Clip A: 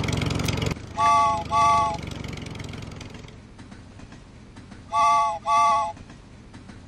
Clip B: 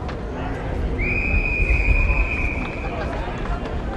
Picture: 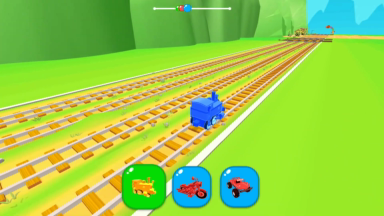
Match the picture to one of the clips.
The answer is A